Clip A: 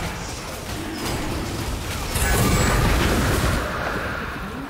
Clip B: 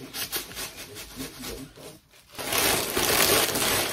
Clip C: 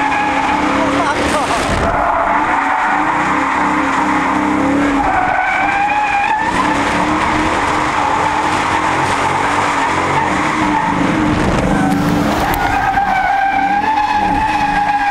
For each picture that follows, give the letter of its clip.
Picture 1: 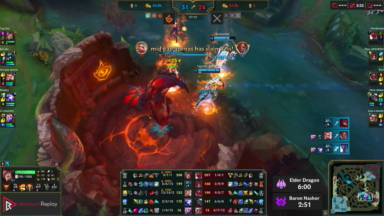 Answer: A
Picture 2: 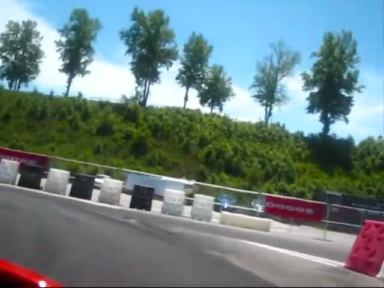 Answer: C